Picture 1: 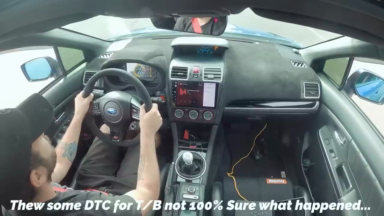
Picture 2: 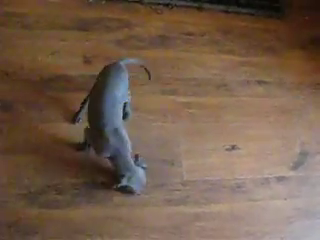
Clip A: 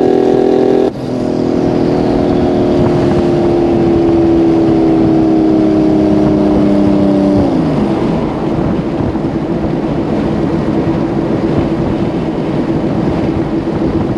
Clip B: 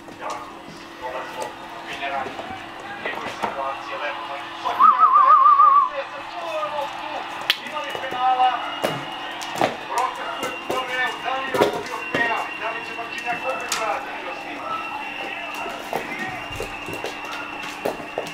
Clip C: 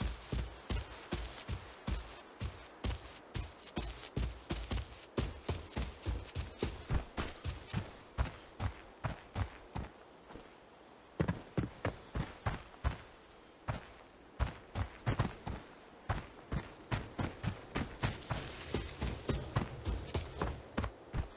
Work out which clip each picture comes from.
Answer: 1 A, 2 B